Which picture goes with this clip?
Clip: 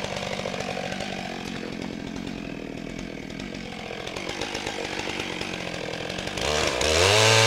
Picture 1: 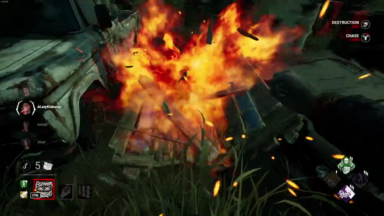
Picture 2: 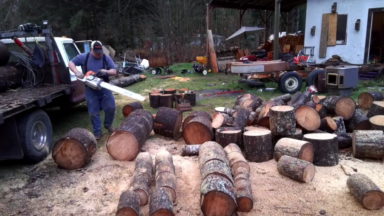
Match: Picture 2